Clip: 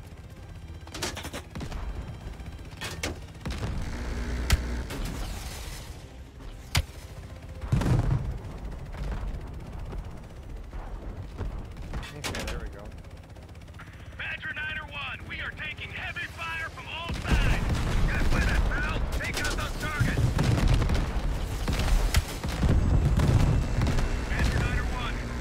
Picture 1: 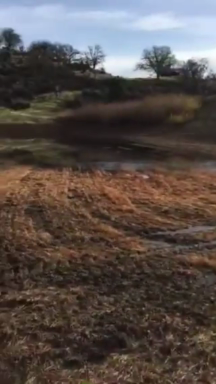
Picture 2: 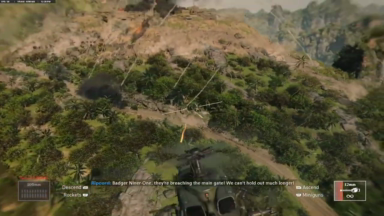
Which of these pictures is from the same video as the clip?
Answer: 2